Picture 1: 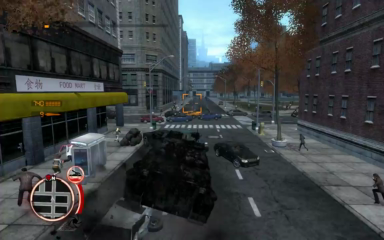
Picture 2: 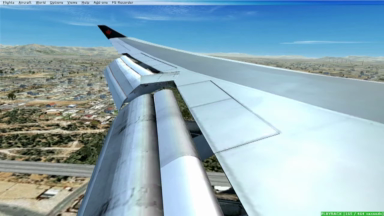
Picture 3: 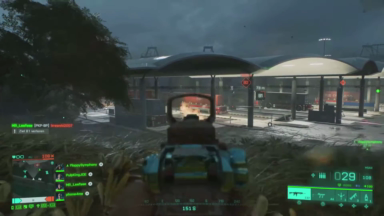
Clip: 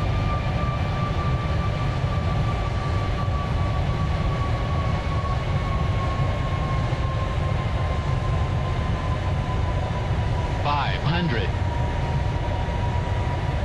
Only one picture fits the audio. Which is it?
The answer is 2